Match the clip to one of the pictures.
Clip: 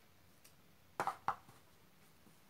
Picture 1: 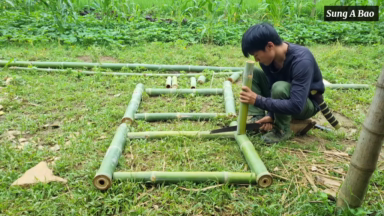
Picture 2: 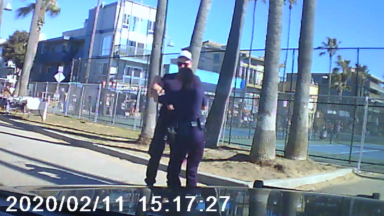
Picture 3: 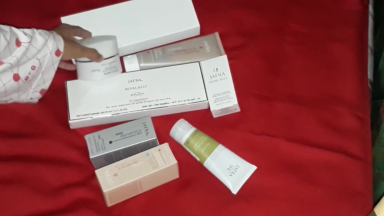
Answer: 3